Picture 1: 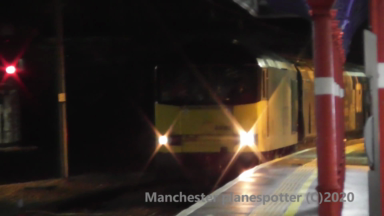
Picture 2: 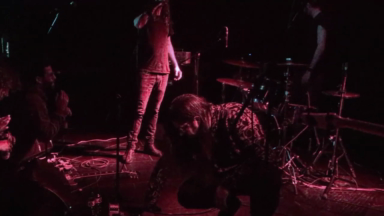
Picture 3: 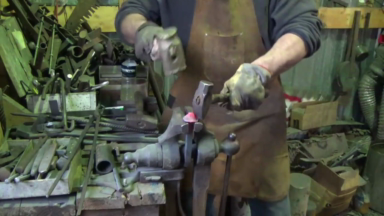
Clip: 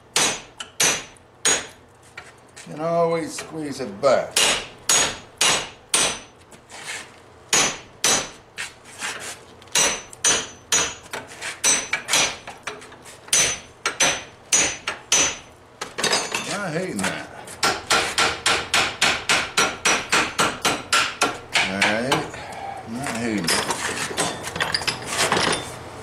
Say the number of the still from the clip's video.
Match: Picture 3